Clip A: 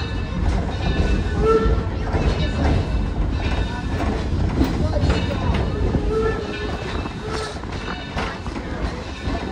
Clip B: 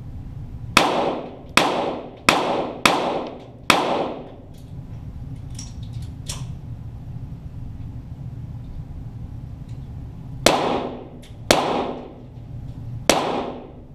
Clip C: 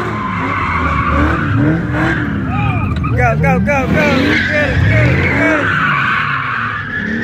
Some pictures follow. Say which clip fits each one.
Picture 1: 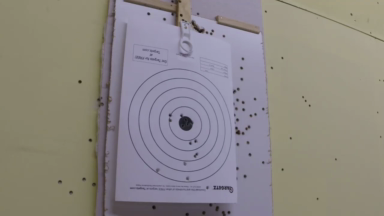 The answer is B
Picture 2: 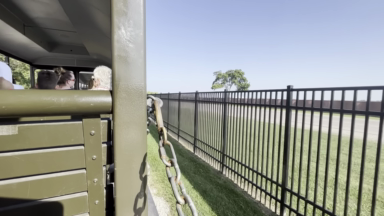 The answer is A